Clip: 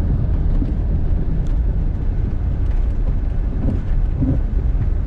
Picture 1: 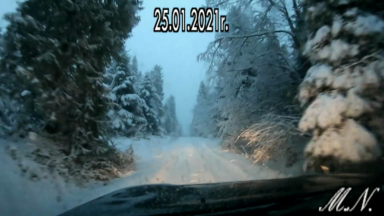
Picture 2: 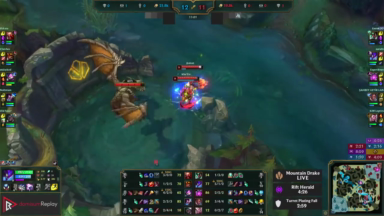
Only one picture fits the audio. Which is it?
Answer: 1